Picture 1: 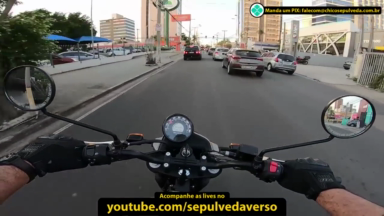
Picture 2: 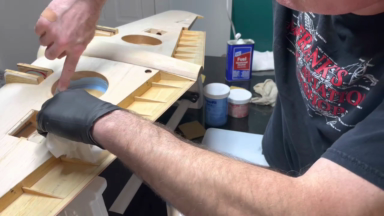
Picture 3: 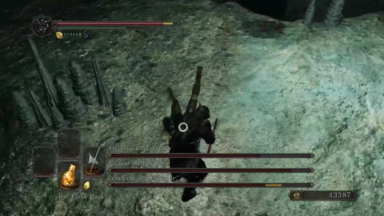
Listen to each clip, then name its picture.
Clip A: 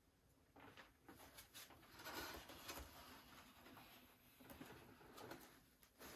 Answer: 2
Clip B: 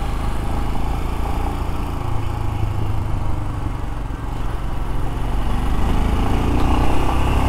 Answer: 1